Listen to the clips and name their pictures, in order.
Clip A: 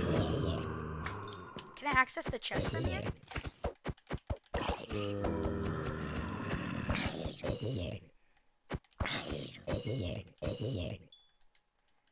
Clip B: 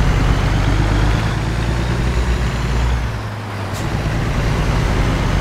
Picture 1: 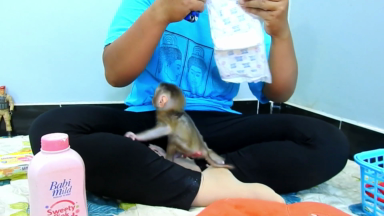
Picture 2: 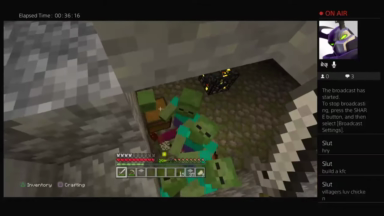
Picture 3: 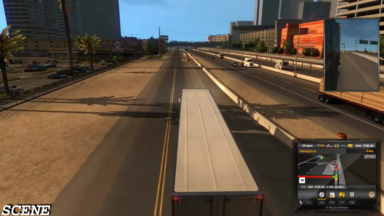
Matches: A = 2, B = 3